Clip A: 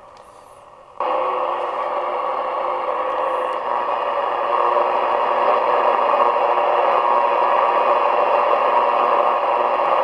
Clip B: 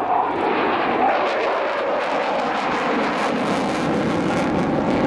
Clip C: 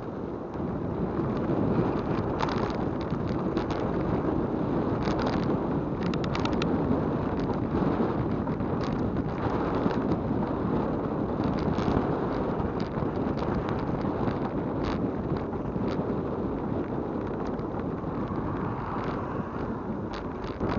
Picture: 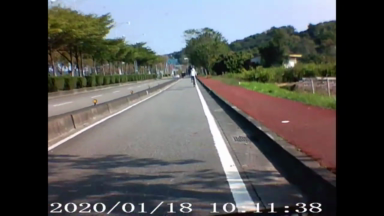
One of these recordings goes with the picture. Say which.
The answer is C